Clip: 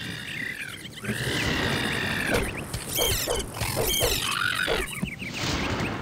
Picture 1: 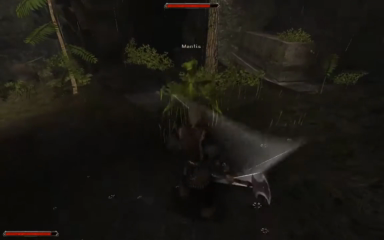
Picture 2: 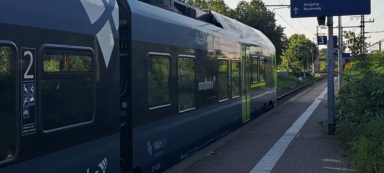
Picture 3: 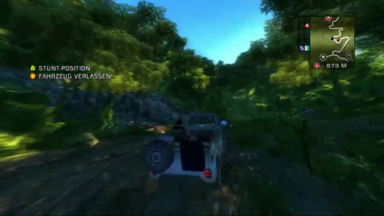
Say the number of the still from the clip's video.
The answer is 1